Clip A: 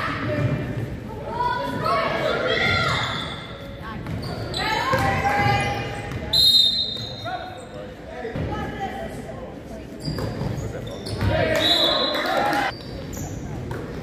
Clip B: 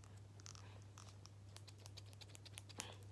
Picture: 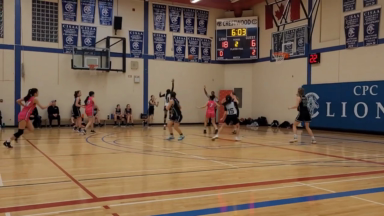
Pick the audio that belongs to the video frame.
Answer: A